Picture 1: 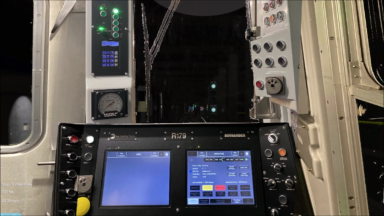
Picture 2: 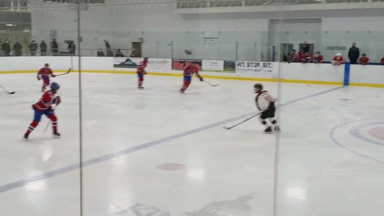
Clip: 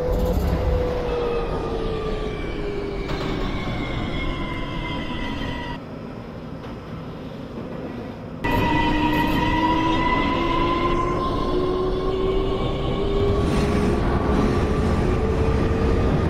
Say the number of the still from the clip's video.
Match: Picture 1